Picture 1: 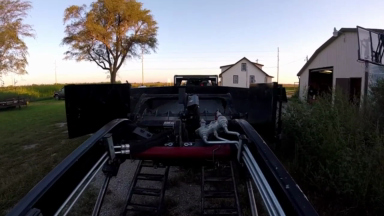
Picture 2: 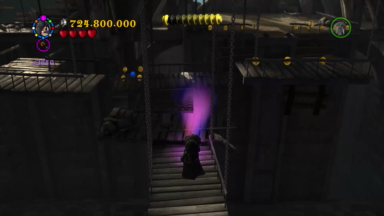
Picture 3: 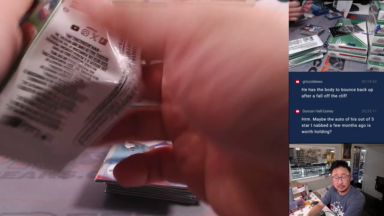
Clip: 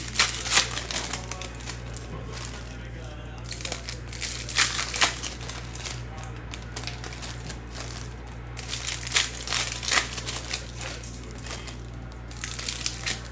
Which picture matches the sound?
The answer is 3